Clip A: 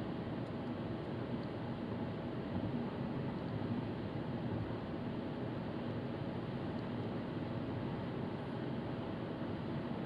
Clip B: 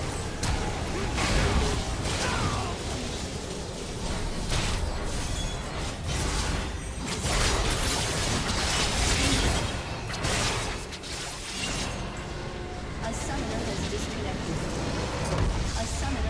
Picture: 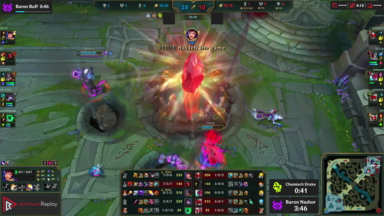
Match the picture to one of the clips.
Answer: B